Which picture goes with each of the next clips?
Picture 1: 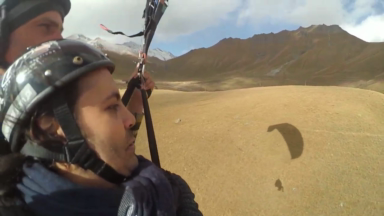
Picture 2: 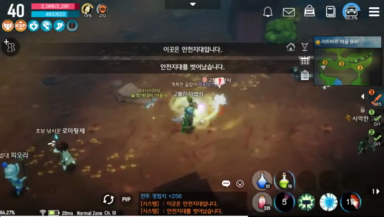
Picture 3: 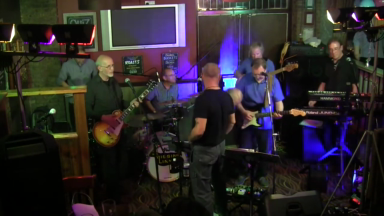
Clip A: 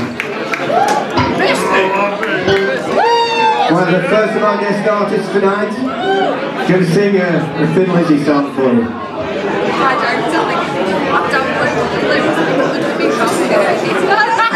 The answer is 3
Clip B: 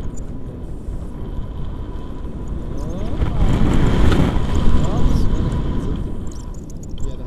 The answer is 1